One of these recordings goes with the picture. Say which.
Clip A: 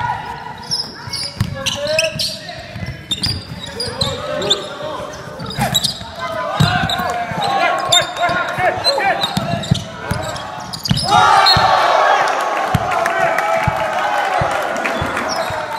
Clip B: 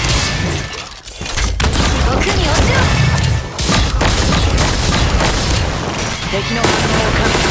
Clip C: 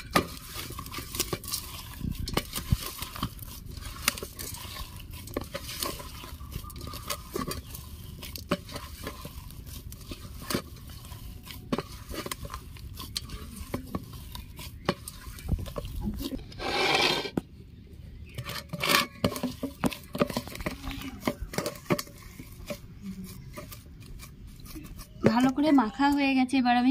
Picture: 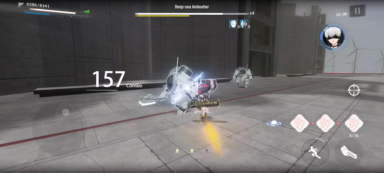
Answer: B